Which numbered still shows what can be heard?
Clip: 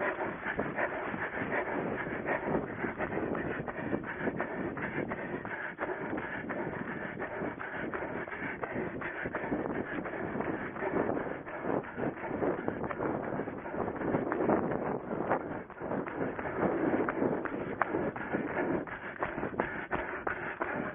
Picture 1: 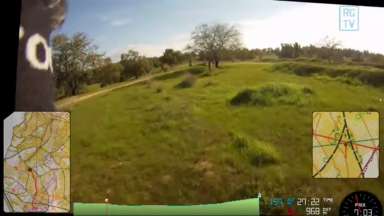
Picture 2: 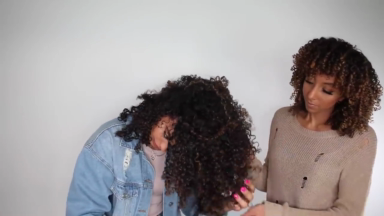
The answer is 1